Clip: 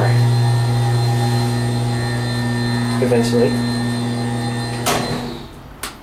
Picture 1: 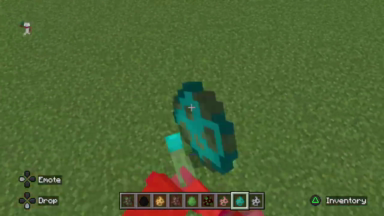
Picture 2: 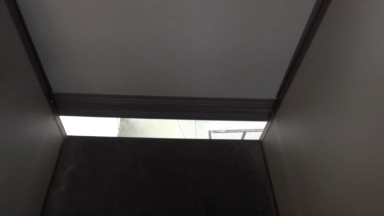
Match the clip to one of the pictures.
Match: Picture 2